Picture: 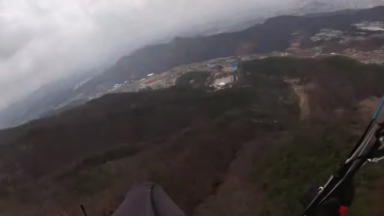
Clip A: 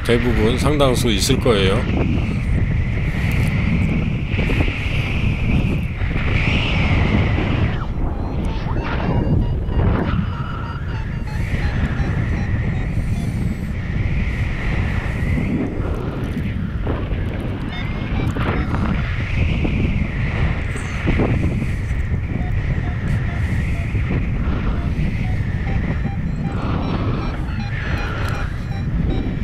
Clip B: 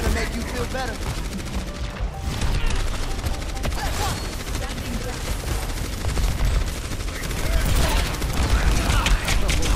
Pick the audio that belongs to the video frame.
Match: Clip A